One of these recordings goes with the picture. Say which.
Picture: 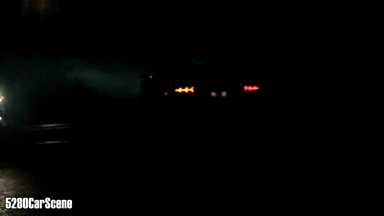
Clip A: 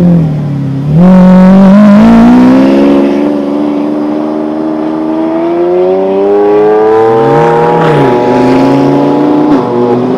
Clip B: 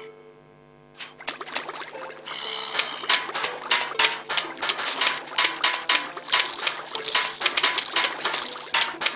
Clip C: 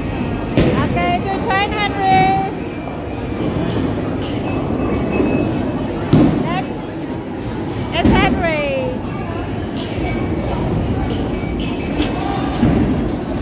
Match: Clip A